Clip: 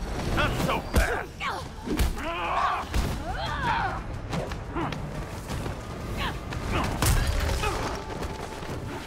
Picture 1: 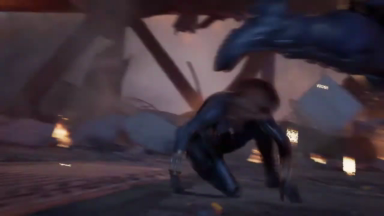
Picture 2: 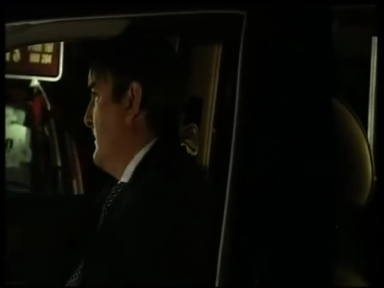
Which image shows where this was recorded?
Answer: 1